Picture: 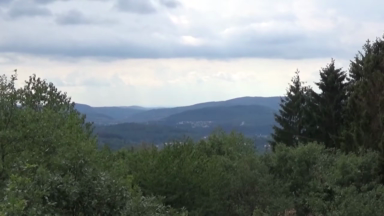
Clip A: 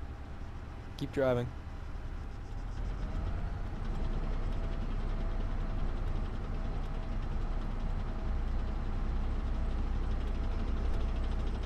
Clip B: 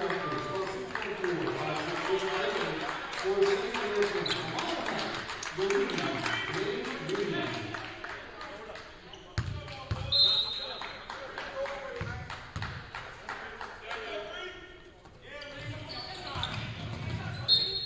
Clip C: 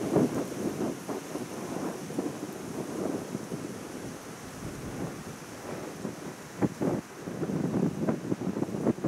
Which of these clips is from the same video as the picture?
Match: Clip C